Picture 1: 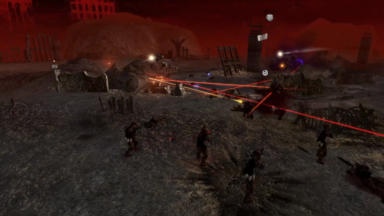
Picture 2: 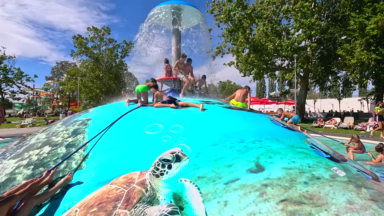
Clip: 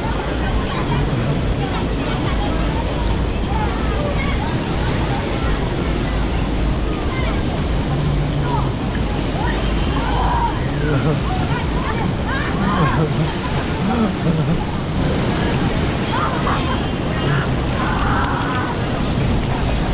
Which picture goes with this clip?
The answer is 2